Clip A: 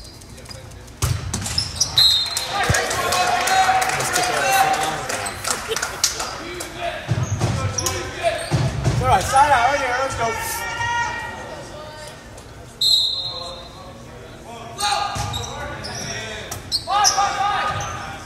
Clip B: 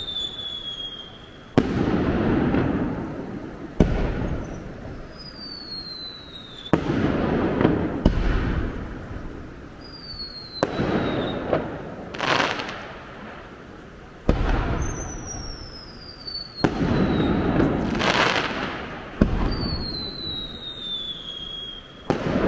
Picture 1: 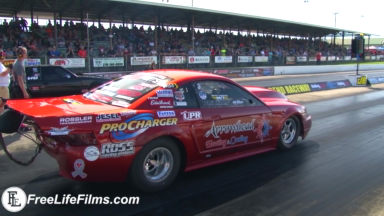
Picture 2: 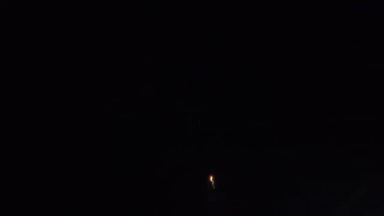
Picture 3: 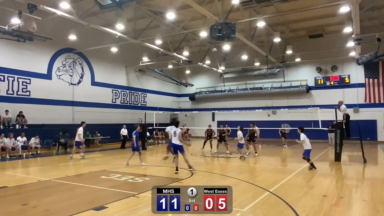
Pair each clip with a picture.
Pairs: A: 3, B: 2